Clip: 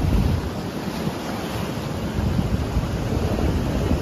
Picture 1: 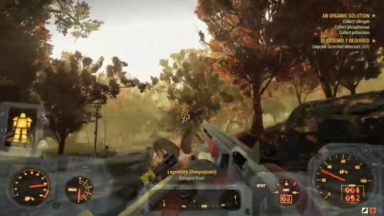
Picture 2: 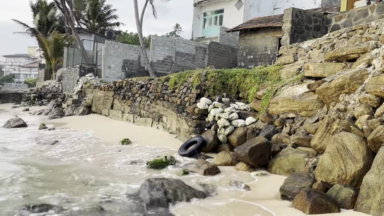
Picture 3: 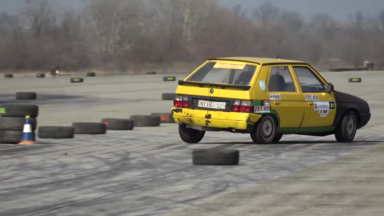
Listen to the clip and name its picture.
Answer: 2